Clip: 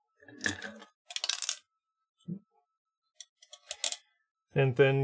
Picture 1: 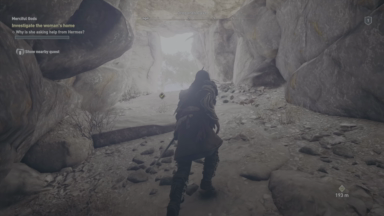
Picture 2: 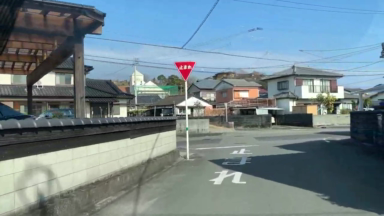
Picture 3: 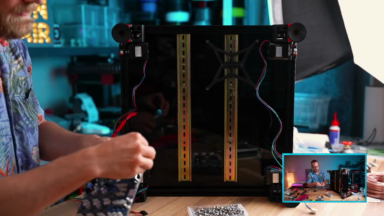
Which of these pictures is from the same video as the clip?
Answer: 3